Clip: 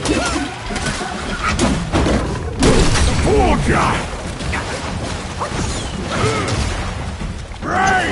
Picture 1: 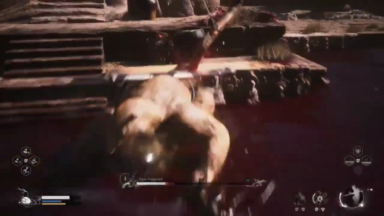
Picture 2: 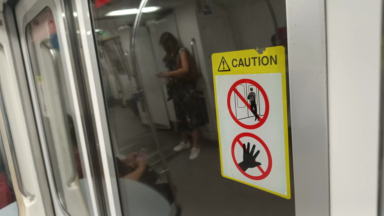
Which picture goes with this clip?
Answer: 1